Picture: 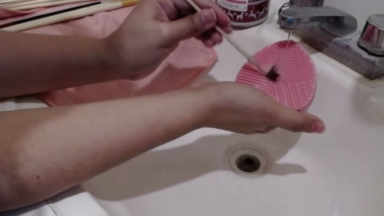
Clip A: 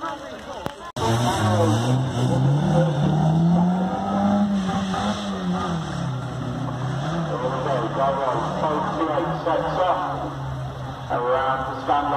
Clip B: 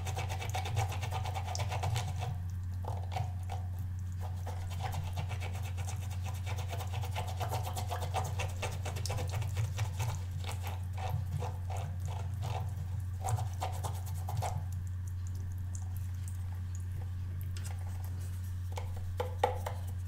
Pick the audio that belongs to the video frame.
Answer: B